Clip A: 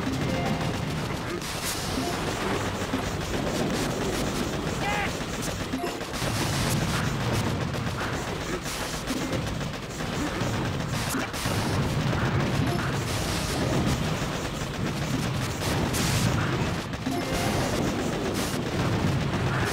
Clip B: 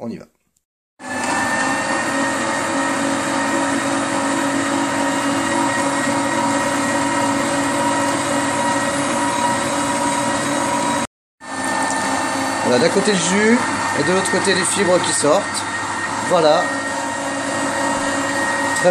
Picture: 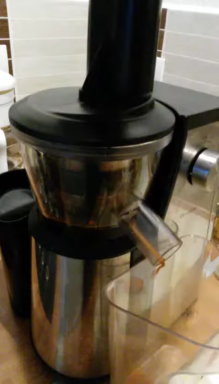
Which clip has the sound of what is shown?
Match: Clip B